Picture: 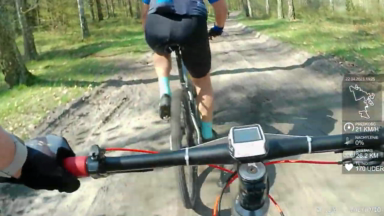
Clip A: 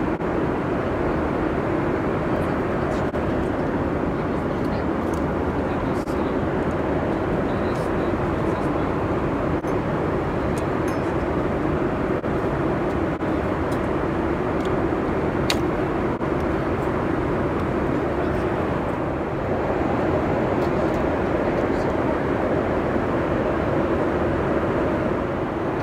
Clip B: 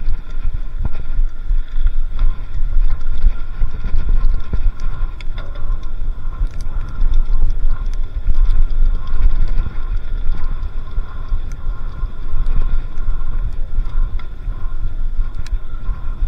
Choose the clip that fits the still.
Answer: B